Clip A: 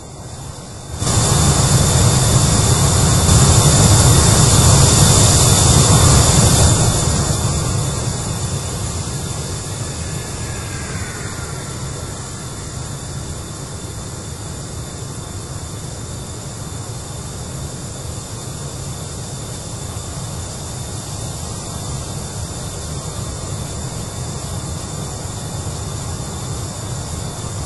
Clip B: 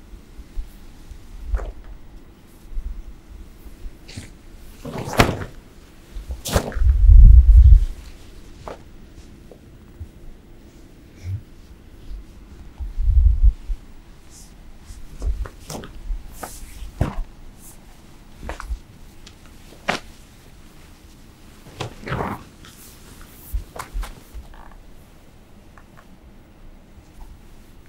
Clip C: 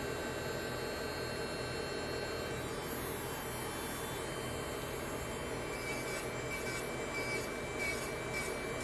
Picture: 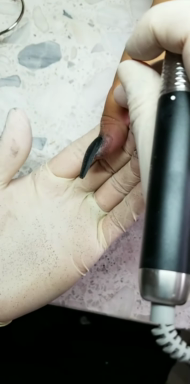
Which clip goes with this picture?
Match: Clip C